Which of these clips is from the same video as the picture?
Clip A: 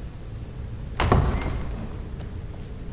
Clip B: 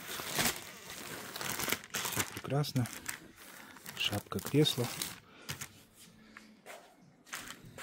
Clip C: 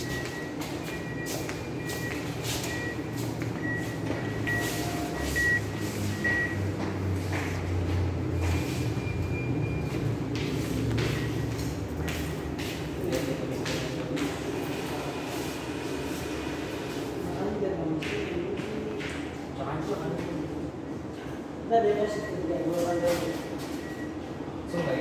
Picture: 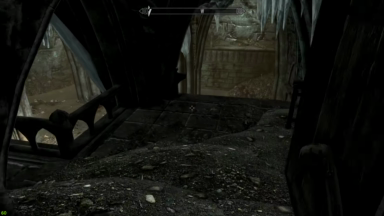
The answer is A